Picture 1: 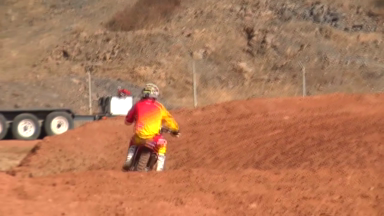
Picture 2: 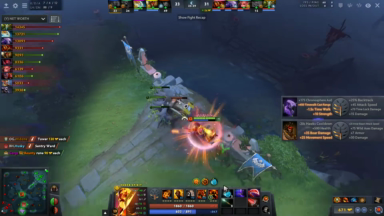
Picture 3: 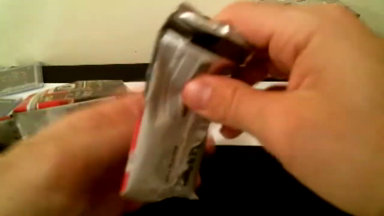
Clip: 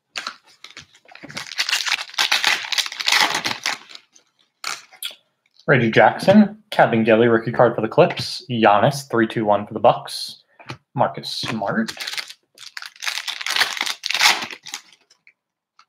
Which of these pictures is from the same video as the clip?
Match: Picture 3